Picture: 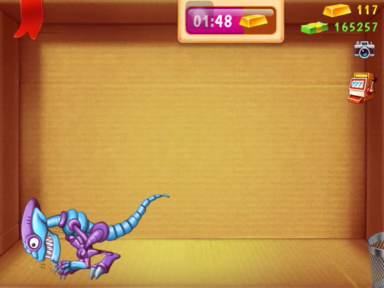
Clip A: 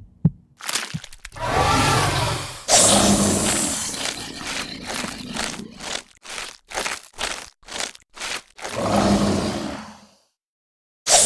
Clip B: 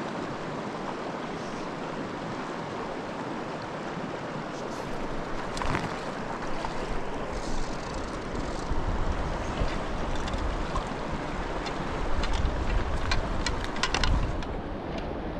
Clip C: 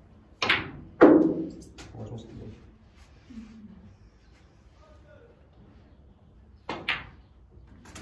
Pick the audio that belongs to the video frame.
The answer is A